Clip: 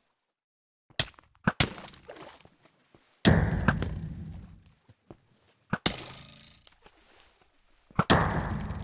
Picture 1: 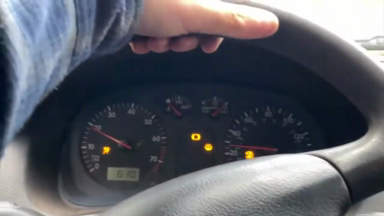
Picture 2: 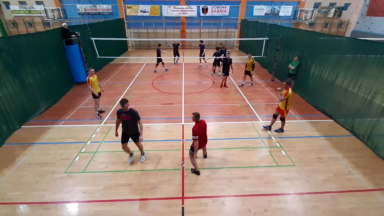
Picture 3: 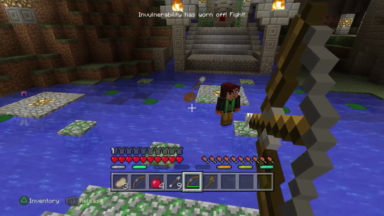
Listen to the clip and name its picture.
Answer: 3